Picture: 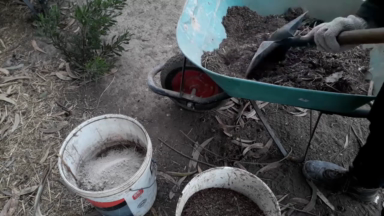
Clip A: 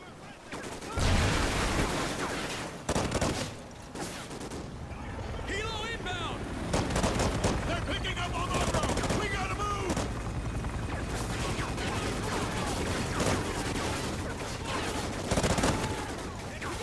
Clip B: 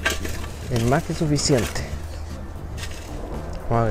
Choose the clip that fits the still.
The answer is B